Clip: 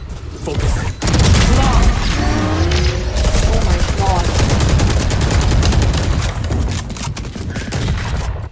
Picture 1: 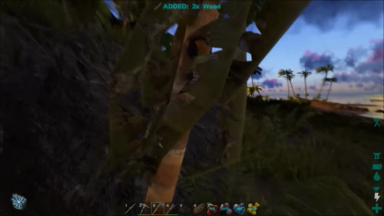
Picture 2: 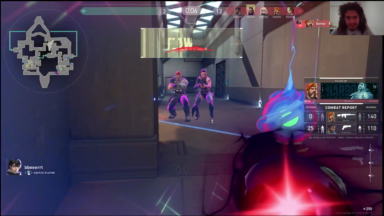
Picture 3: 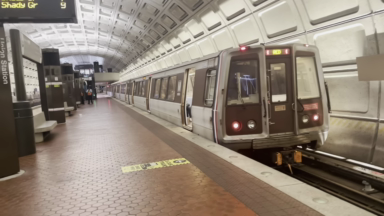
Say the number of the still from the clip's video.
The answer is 2